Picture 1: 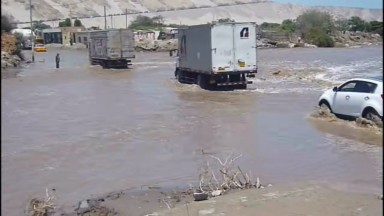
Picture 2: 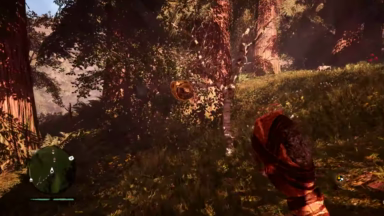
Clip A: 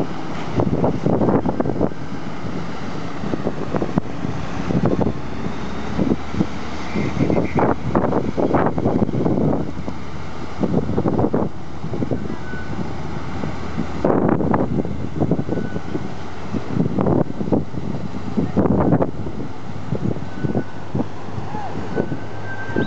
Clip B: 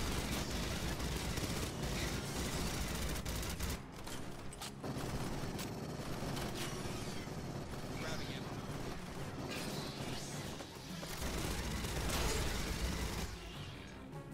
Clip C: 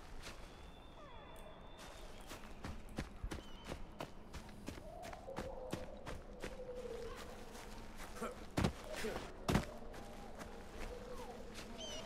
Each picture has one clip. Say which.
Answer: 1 A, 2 C